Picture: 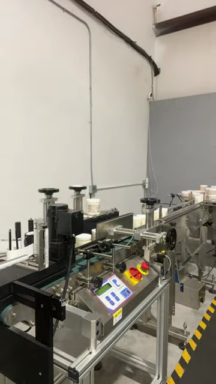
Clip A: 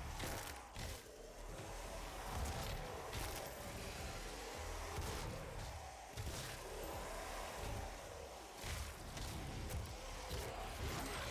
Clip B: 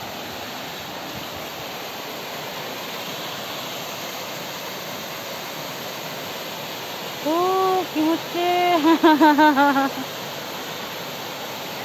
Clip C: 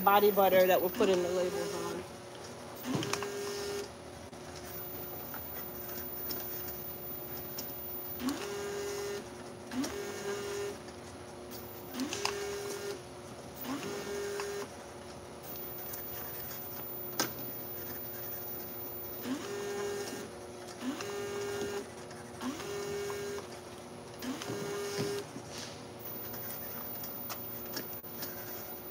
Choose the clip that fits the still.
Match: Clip C